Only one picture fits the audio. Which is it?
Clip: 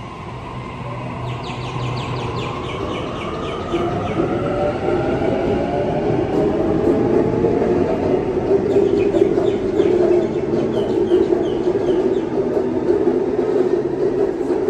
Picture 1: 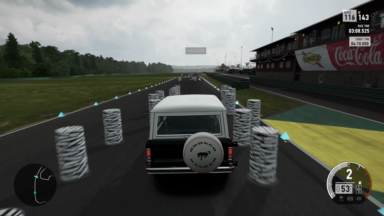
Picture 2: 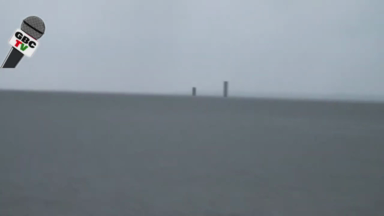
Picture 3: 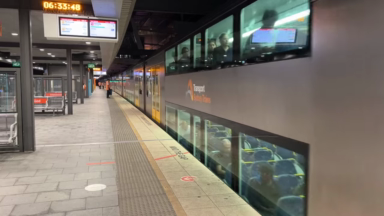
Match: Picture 3